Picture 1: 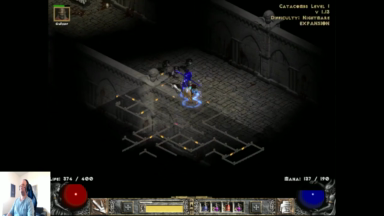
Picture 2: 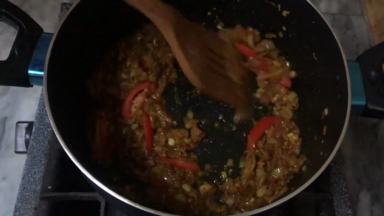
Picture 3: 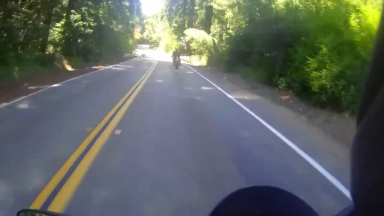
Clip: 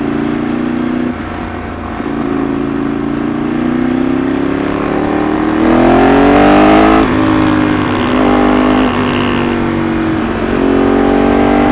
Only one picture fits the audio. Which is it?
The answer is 3